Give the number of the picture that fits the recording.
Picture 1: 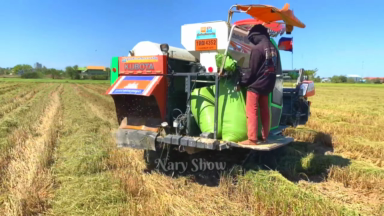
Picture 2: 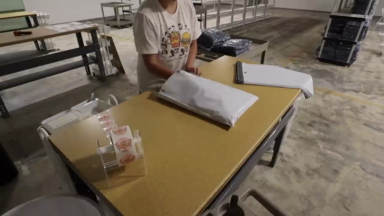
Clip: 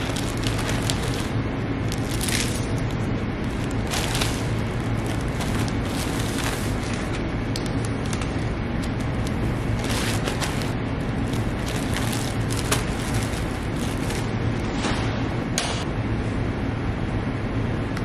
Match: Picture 2